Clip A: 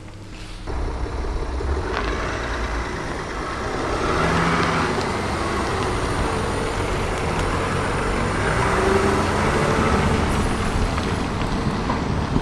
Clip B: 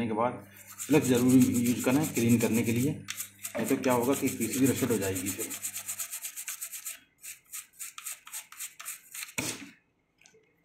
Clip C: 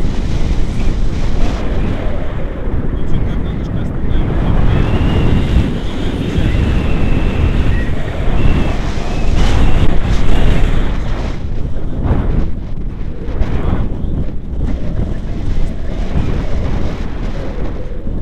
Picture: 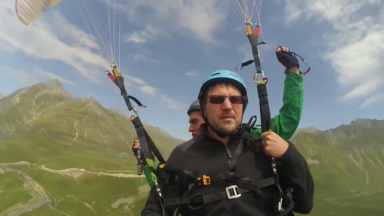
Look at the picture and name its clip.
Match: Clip C